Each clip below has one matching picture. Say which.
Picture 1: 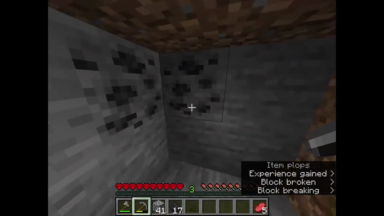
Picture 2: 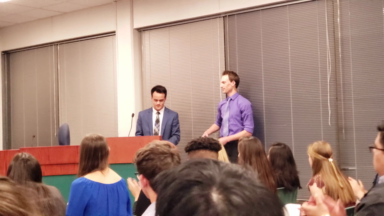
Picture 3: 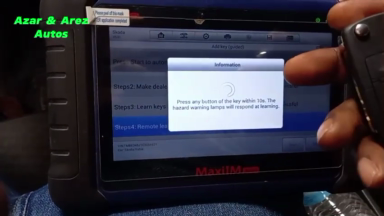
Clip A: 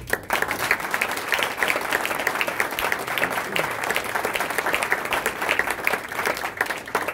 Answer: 2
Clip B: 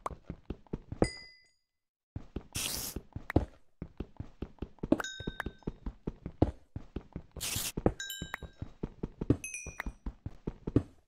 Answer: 1